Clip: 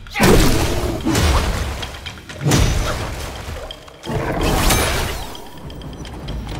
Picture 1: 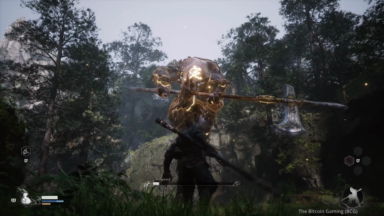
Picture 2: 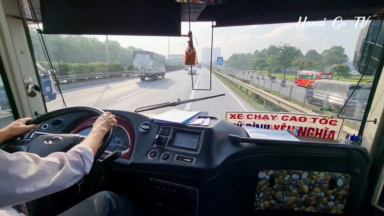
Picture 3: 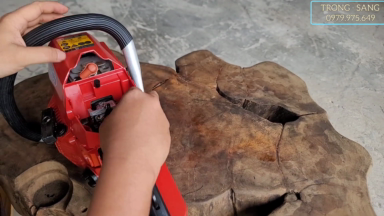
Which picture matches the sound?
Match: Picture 1